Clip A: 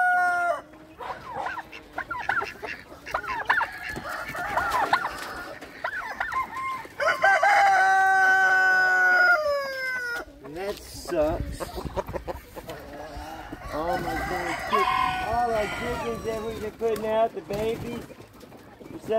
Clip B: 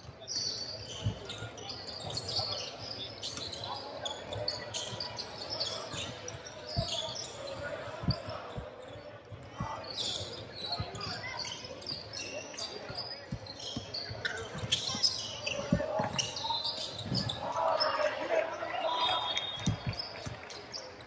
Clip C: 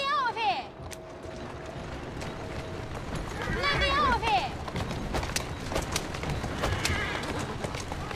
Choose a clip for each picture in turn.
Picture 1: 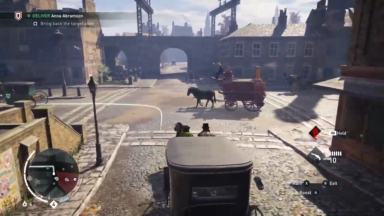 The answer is C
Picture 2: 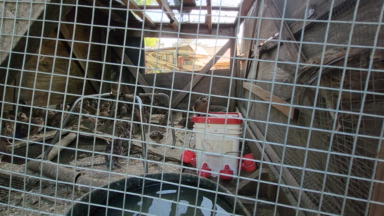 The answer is A